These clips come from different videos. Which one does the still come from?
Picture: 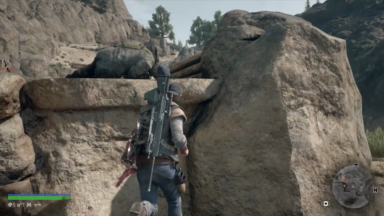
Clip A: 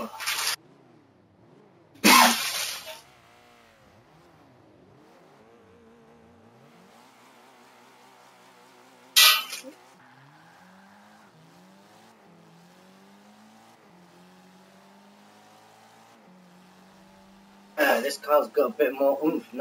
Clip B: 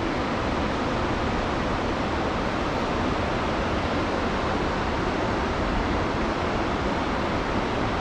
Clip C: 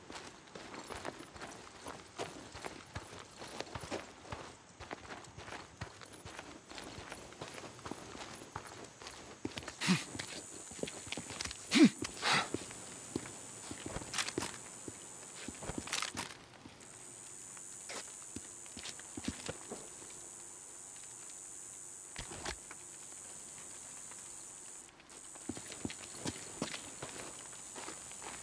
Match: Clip C